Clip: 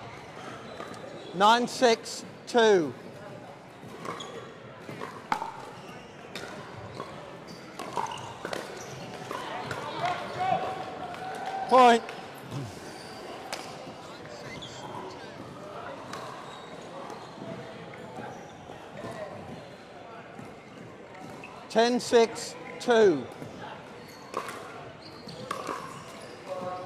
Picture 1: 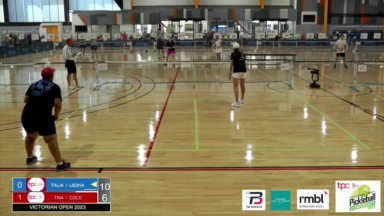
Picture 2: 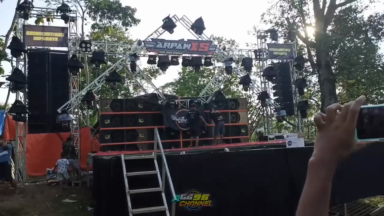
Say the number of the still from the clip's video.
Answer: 1